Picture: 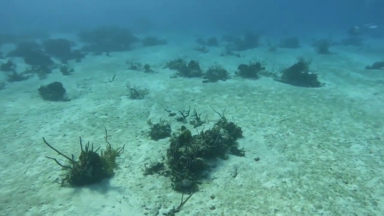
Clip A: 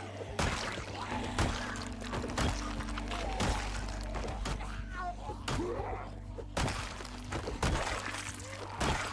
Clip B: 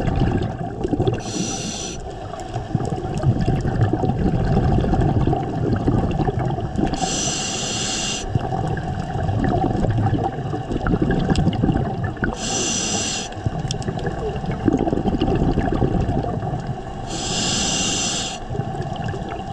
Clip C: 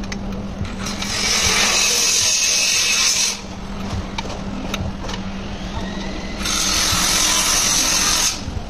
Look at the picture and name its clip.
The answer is B